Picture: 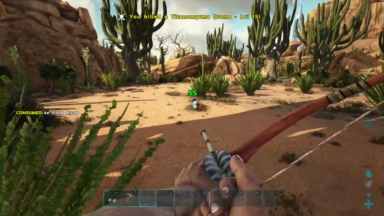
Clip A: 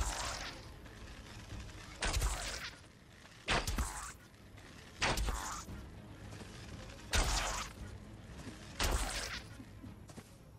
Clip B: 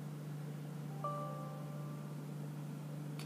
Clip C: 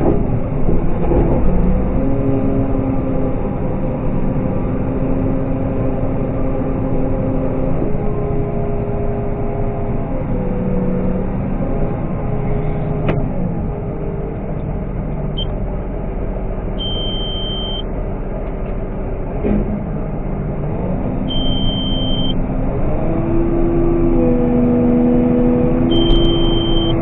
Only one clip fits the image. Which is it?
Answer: A